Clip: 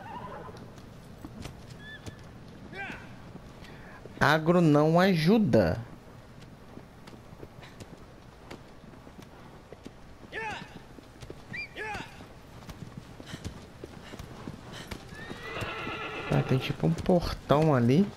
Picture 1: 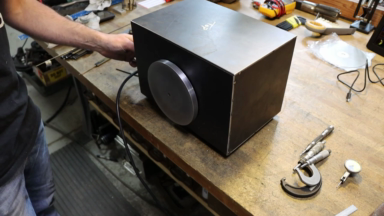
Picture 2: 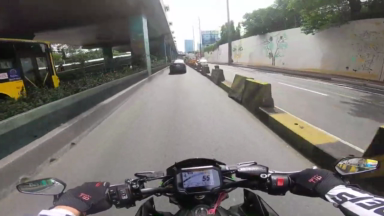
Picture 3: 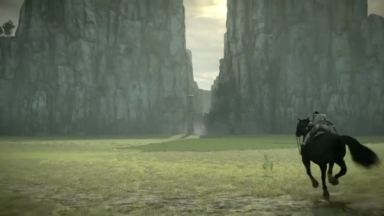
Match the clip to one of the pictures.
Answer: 3